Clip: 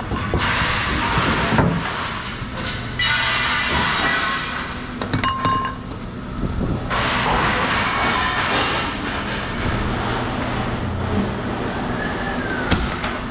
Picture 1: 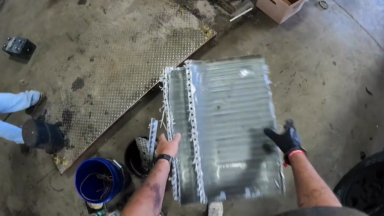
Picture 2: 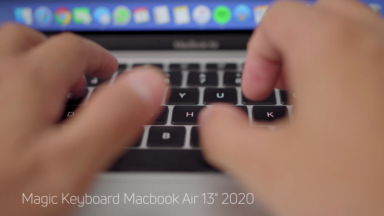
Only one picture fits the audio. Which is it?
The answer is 1